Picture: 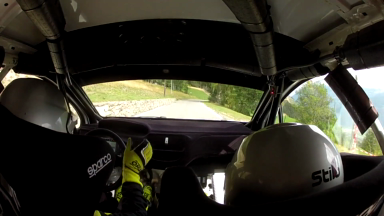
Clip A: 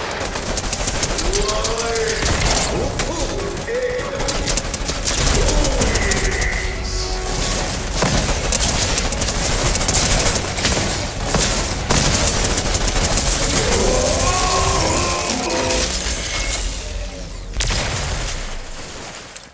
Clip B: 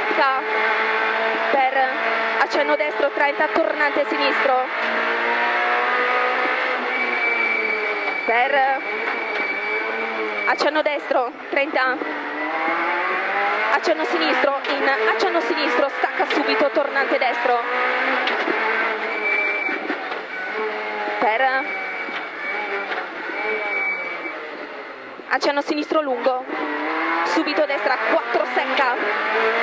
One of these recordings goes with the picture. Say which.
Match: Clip B